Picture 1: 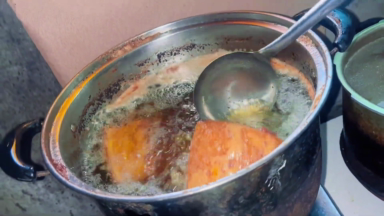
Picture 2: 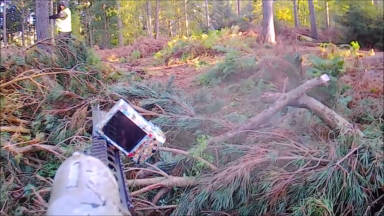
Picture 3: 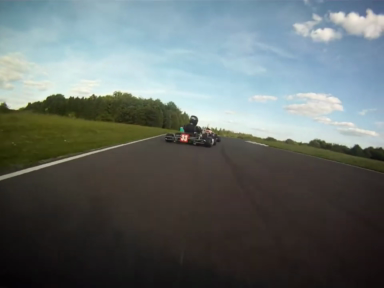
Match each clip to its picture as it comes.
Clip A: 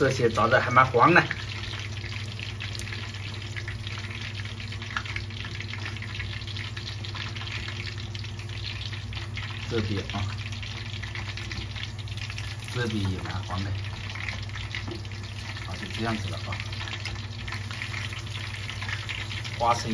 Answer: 1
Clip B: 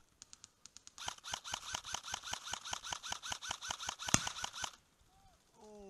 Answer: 2